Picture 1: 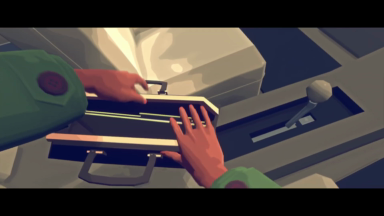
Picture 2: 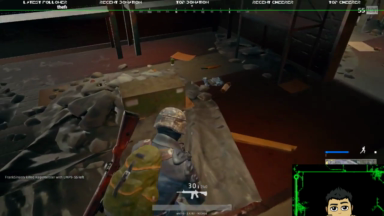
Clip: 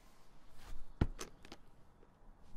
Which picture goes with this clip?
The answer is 1